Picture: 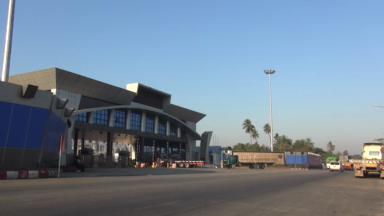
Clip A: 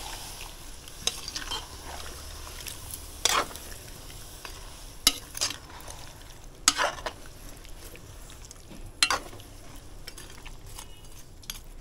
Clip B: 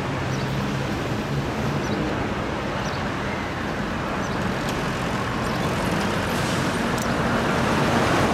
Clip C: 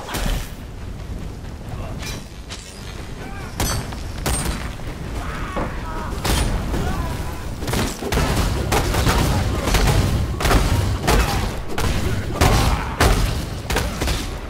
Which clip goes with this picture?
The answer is B